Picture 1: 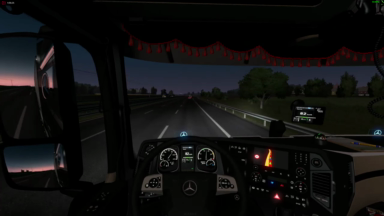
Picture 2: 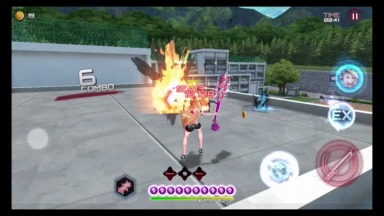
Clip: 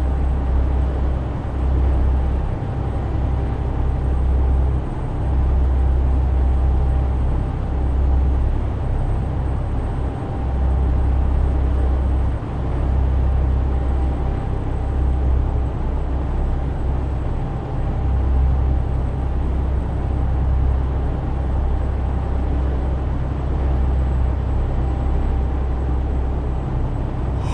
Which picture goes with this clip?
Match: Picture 1